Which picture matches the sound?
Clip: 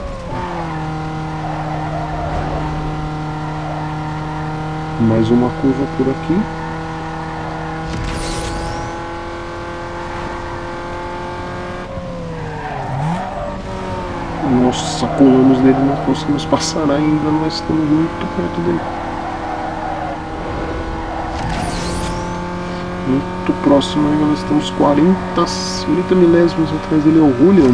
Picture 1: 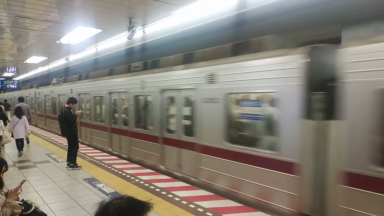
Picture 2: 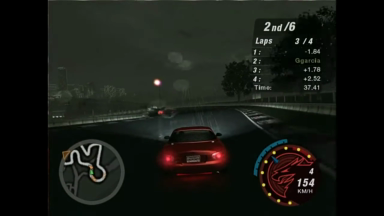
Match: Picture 2